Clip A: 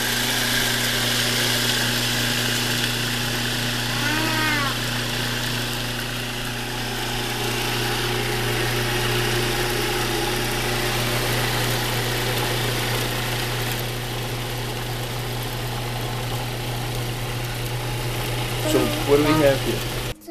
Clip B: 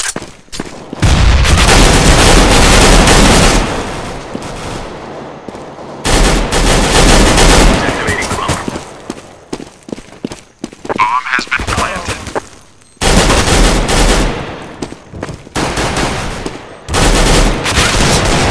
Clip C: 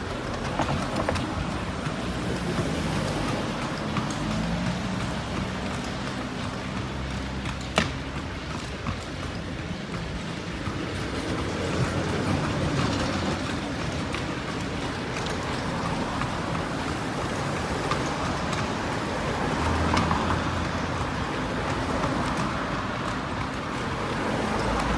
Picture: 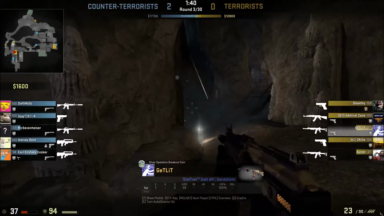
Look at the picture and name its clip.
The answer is B